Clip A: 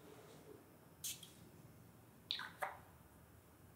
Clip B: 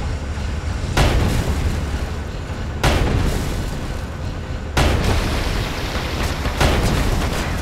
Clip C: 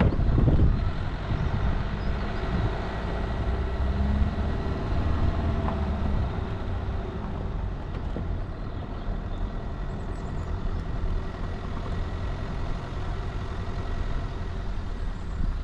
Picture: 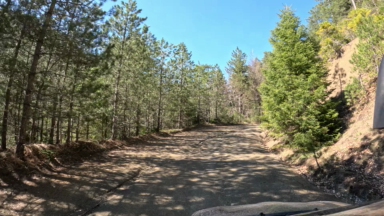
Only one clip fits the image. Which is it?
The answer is C